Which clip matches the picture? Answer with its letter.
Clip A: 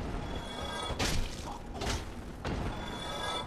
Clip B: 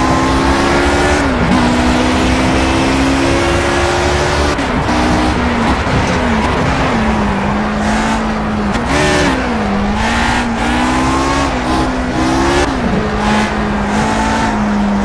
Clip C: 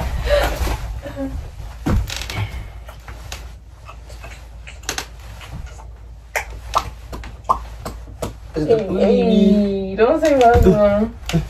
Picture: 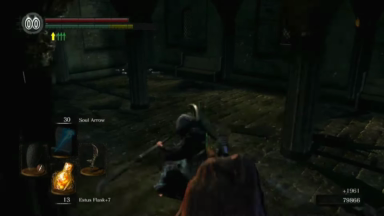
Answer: A